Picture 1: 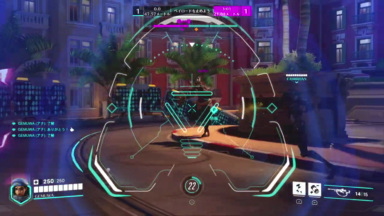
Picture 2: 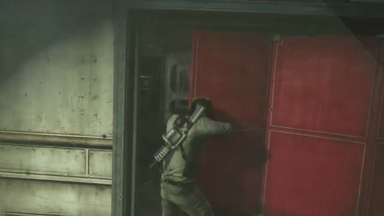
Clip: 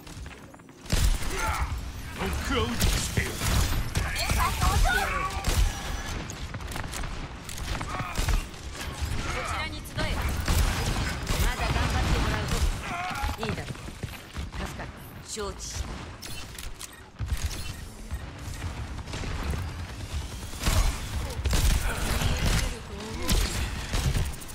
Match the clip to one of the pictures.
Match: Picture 1